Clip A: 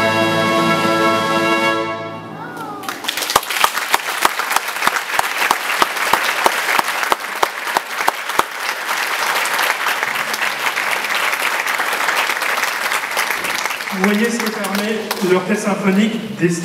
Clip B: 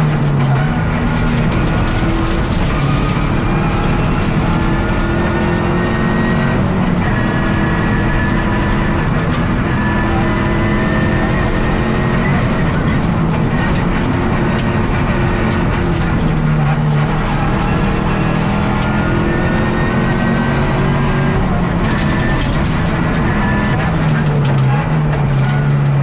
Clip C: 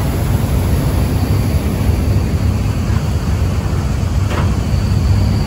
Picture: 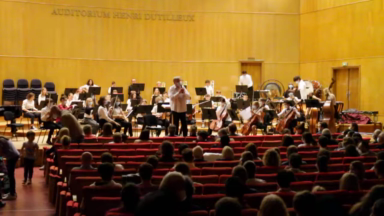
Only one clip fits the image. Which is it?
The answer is A